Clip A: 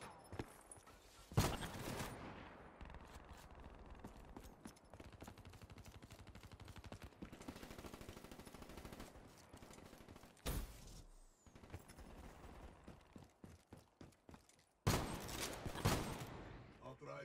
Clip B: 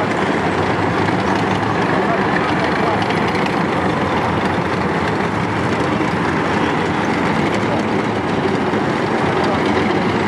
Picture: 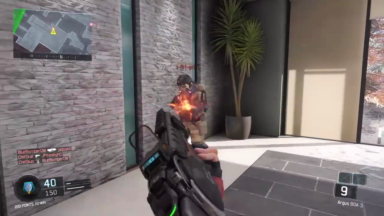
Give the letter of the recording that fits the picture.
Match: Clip A